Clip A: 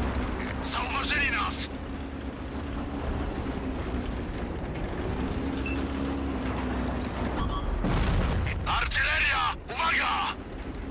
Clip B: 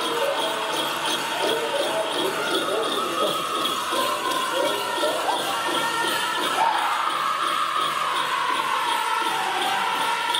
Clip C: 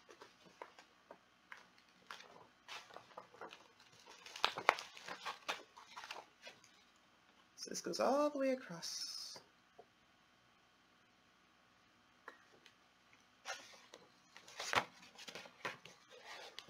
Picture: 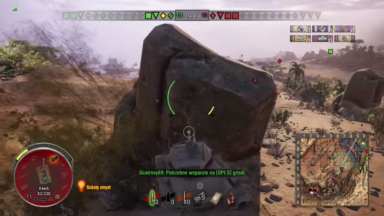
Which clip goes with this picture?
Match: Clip A